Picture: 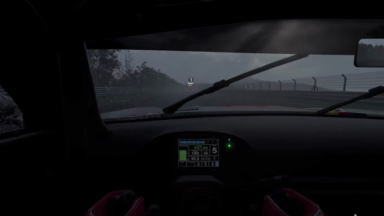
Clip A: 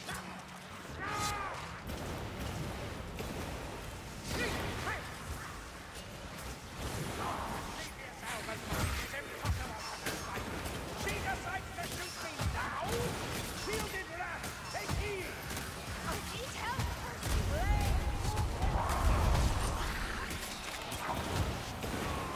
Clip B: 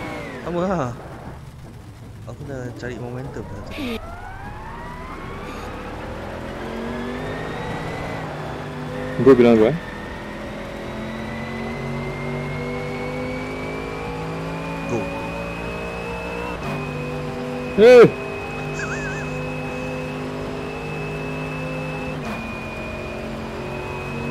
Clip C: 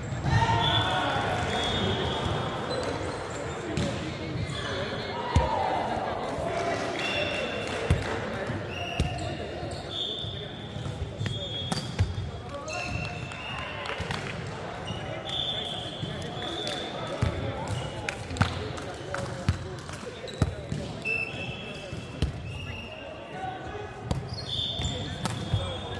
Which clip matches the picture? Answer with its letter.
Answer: B